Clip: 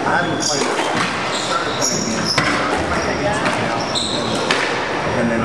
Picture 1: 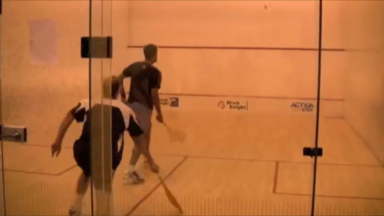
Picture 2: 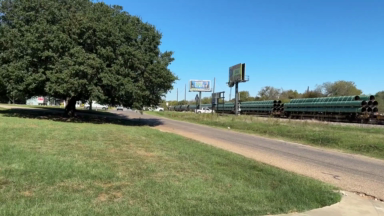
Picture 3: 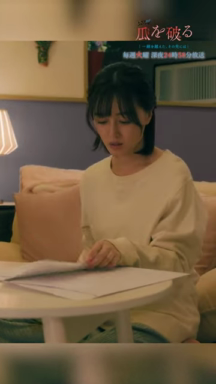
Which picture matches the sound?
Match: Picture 1